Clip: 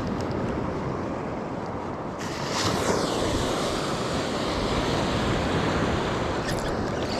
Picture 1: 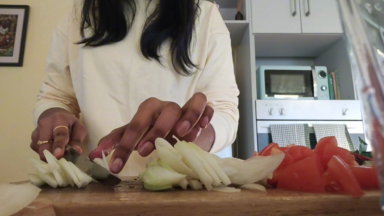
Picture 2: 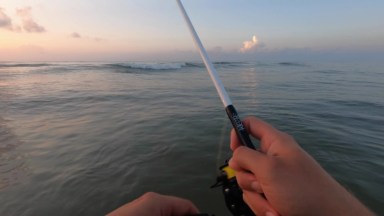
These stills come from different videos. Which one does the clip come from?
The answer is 2